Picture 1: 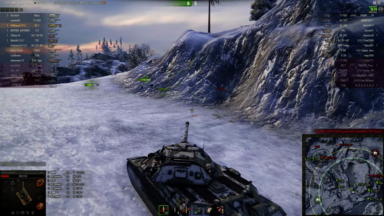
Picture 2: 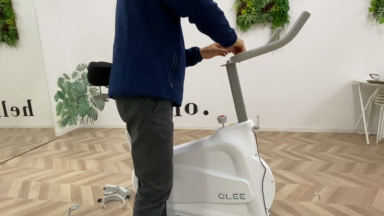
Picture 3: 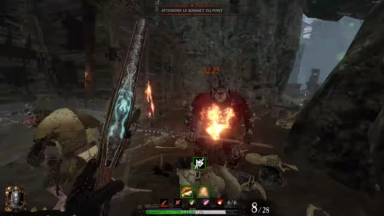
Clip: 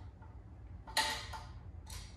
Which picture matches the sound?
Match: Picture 2